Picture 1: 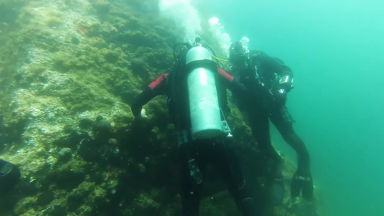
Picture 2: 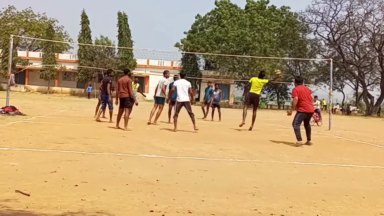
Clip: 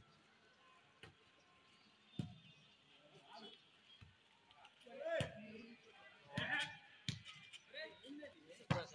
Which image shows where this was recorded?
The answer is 2